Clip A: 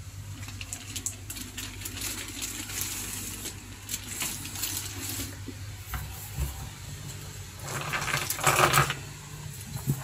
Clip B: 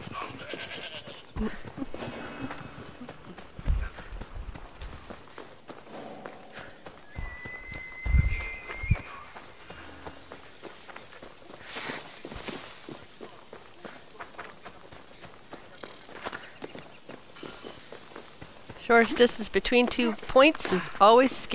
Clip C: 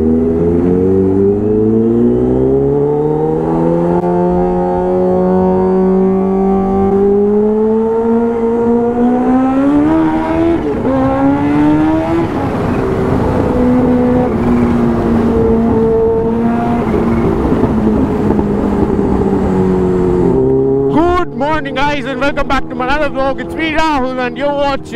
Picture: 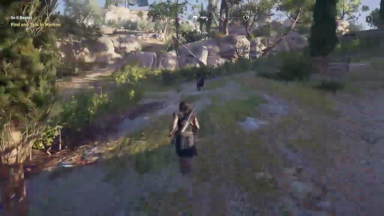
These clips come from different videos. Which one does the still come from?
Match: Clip B